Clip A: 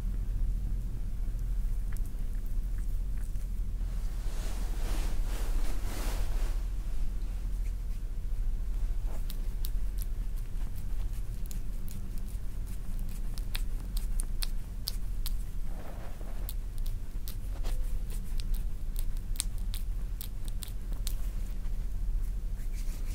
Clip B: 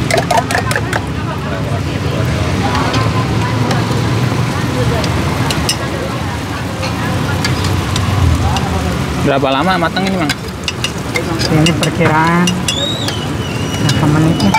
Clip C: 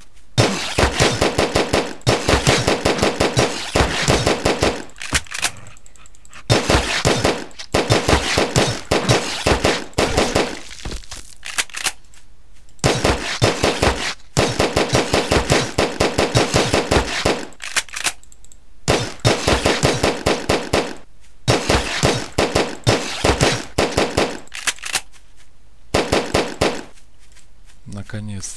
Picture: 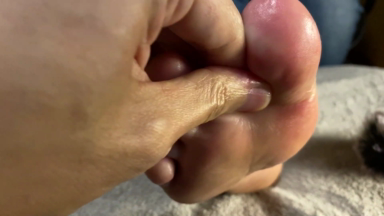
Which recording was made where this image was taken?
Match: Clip A